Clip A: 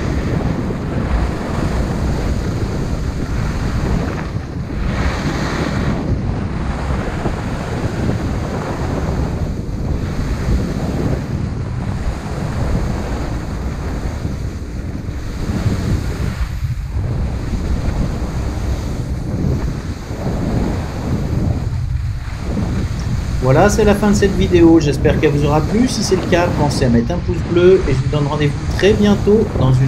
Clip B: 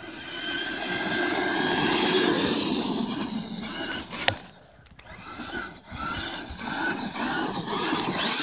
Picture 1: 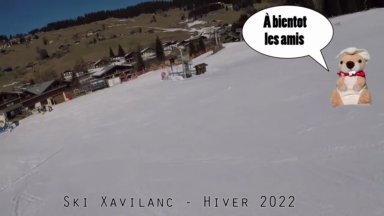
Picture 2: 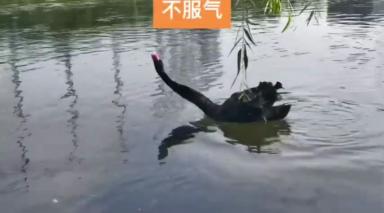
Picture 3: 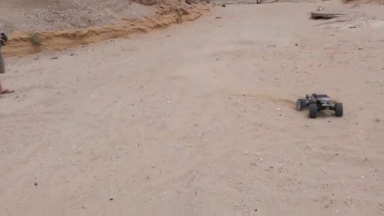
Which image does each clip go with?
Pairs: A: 1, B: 3